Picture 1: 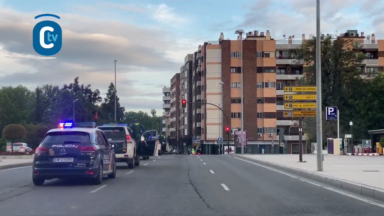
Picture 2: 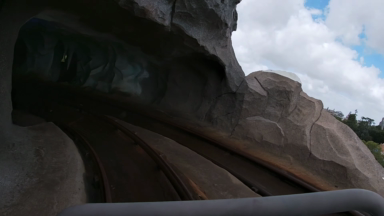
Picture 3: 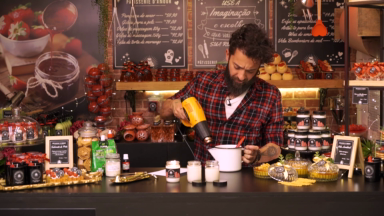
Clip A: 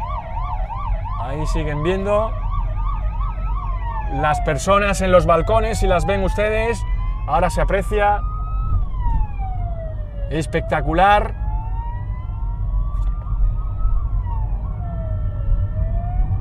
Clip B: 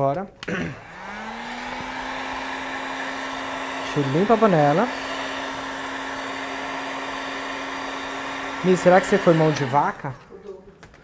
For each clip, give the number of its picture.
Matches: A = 1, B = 3